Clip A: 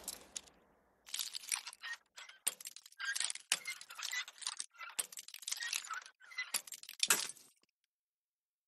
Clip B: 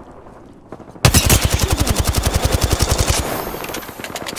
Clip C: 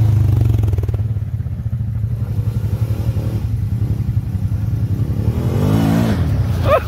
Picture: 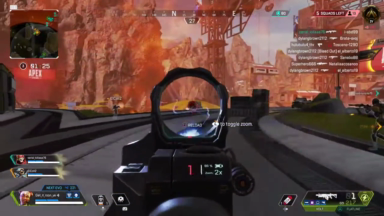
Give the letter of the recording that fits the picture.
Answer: B